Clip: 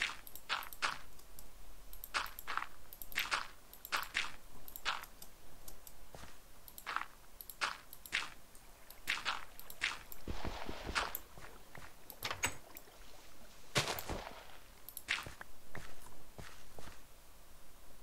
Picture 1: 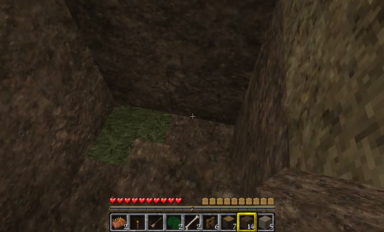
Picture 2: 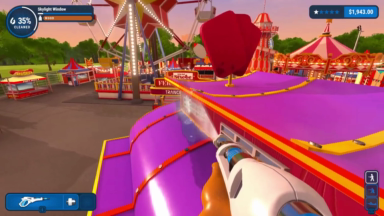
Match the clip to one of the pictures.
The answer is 1